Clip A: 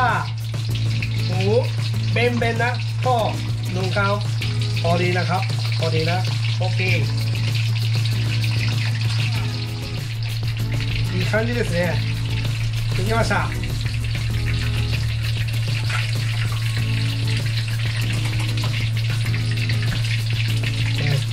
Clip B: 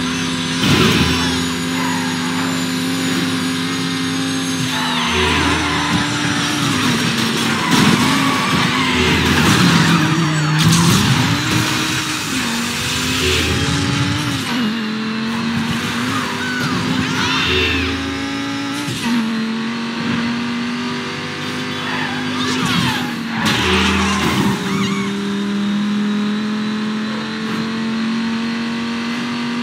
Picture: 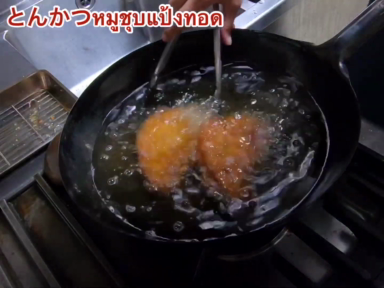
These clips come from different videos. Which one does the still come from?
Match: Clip A